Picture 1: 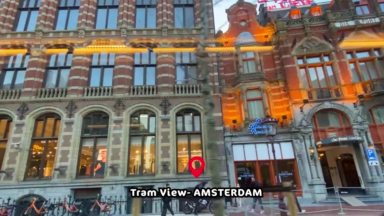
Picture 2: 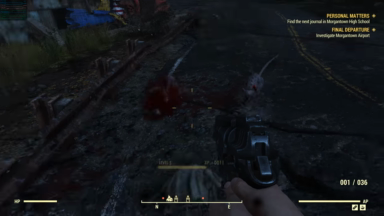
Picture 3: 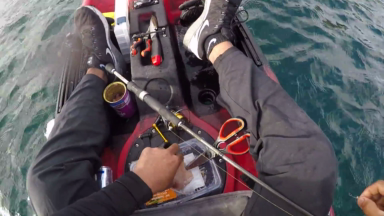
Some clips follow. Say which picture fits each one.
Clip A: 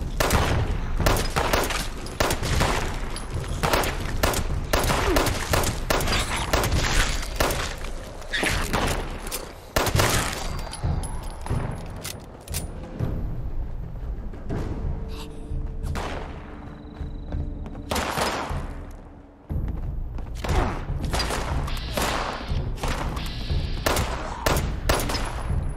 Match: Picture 2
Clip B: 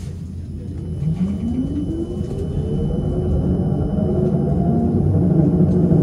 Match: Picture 1